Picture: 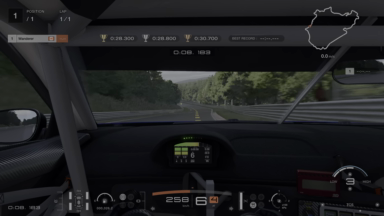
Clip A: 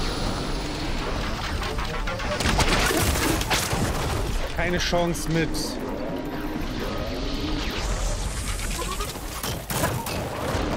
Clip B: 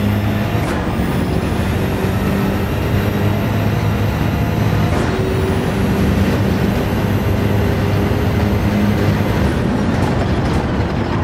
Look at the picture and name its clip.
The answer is B